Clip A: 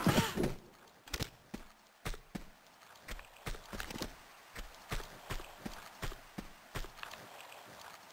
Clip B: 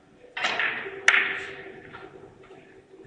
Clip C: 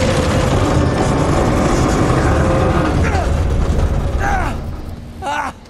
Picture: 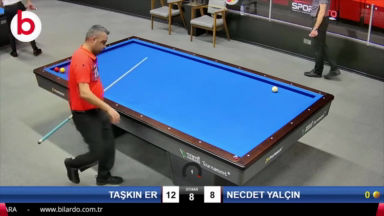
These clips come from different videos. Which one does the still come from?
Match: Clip B